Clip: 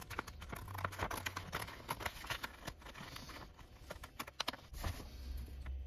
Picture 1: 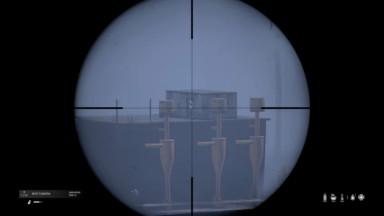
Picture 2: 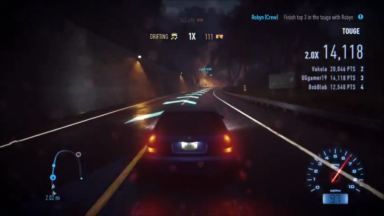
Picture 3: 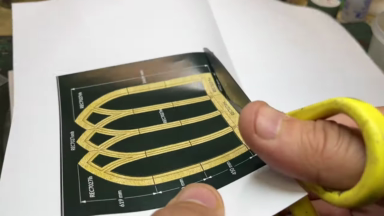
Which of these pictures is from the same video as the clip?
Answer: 3